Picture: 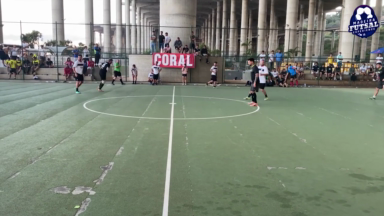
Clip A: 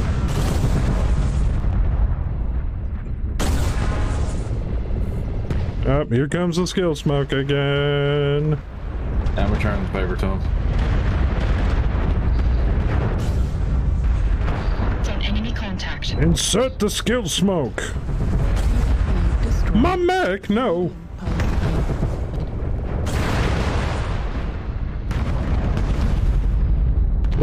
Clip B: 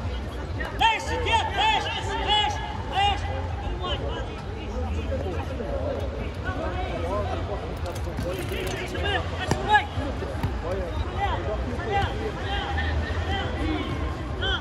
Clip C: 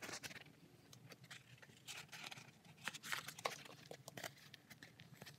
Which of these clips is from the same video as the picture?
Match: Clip B